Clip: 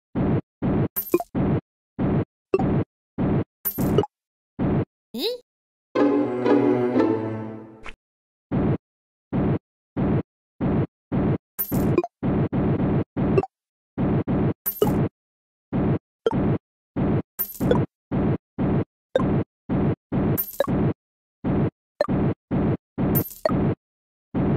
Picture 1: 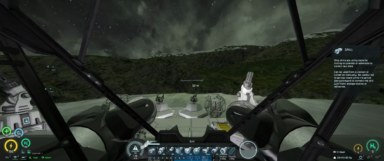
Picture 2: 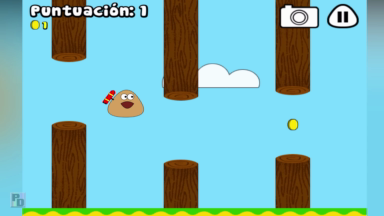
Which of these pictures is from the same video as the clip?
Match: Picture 2